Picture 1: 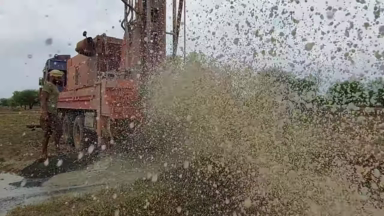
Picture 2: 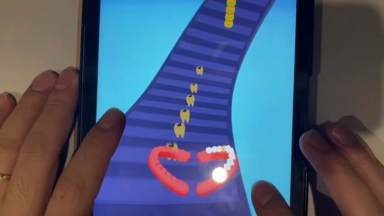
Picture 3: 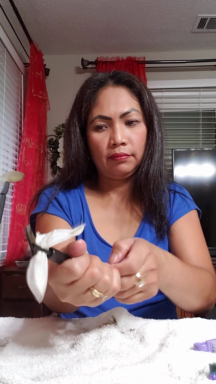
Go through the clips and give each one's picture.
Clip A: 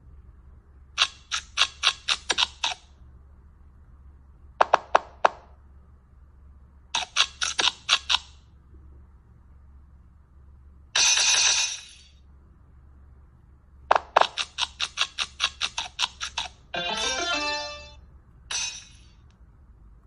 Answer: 2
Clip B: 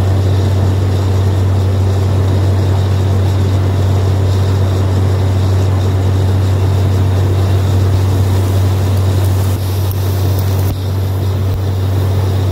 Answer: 1